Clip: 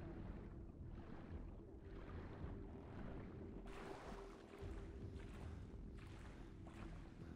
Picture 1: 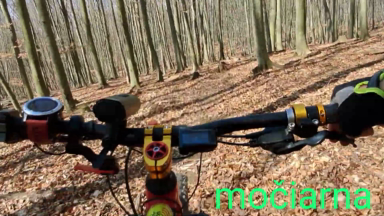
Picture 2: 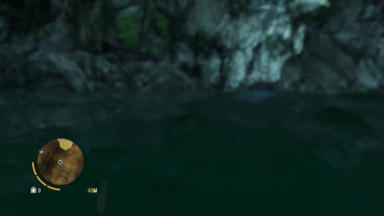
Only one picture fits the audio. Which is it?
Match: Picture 2